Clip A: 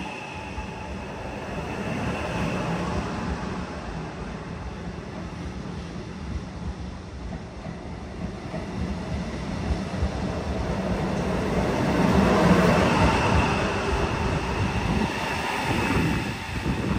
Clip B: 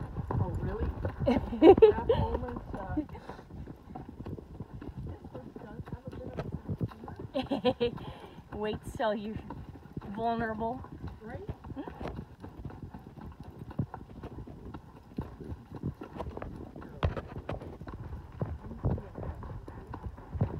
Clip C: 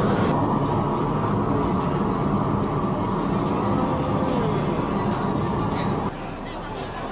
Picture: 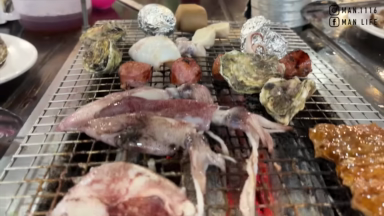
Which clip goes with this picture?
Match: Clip C